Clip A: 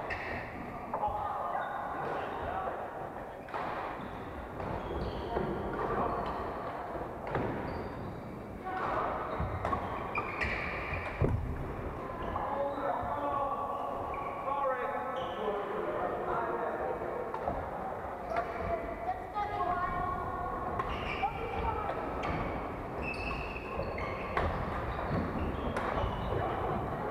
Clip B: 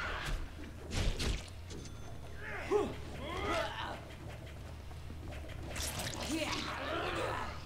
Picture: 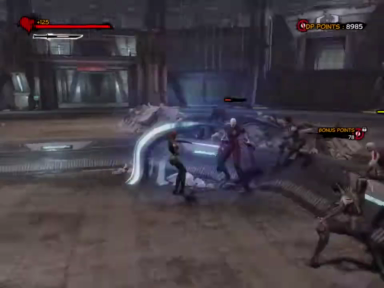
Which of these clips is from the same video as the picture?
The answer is B